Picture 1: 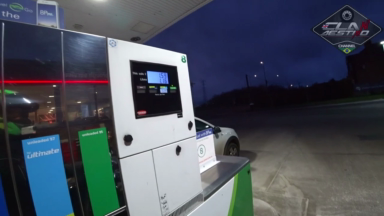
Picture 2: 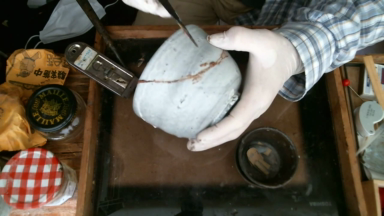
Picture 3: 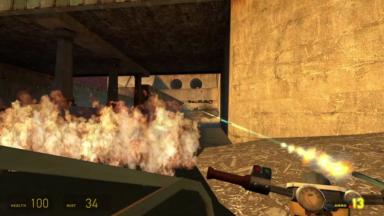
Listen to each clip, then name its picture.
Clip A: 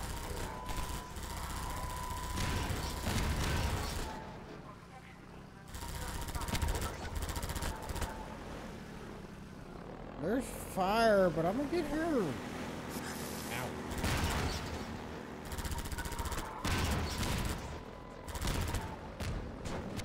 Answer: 3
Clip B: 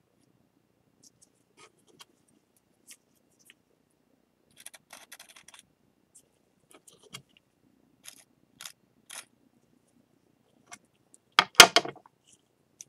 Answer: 2